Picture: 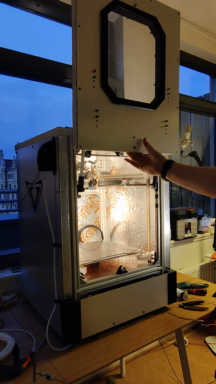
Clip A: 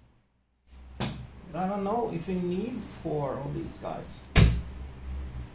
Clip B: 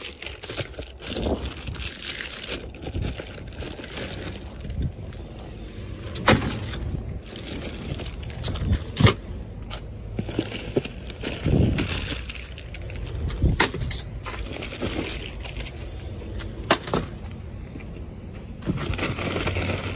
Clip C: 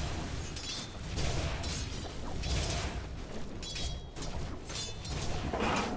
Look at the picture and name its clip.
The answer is A